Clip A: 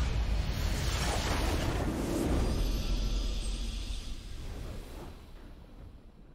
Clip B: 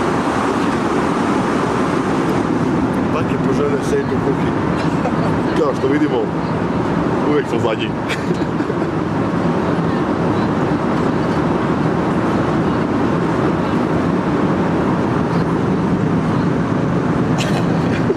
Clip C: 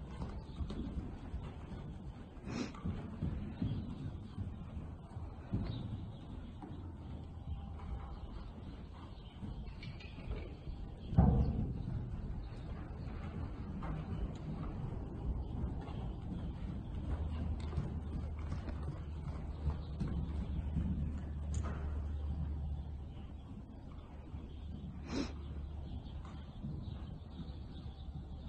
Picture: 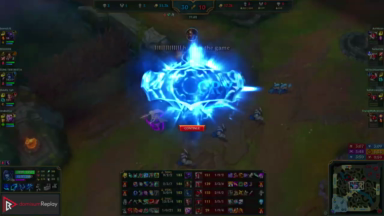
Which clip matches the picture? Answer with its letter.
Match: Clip A